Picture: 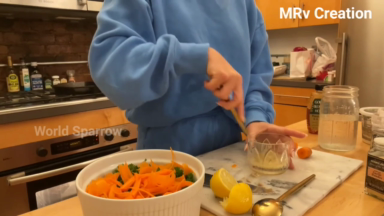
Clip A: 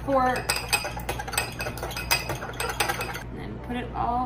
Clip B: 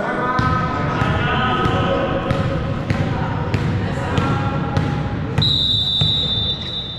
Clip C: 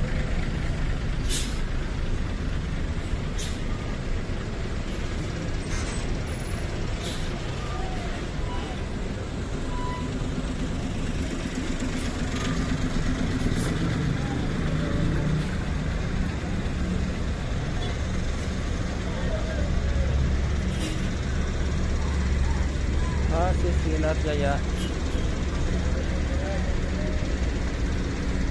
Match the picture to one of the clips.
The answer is A